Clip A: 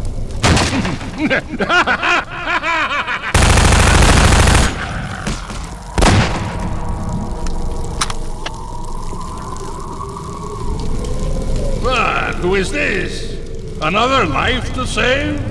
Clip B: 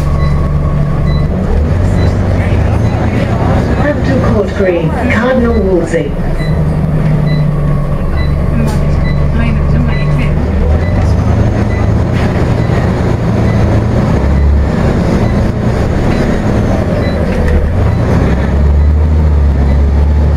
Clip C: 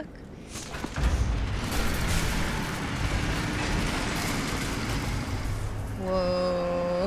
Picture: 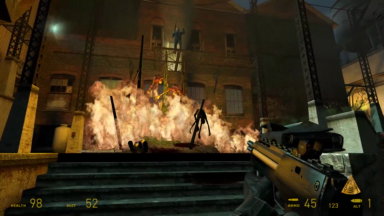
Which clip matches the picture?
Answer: A